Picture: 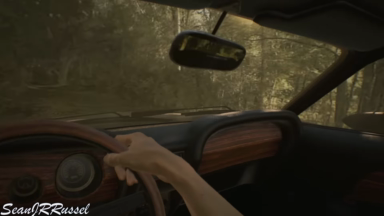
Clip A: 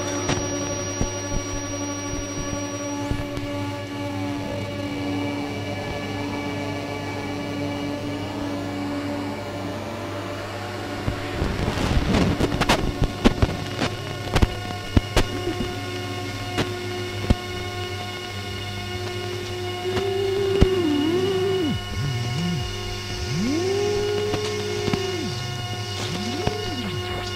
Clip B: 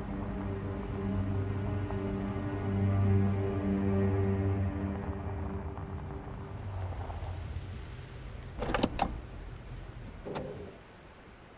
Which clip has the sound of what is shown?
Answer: B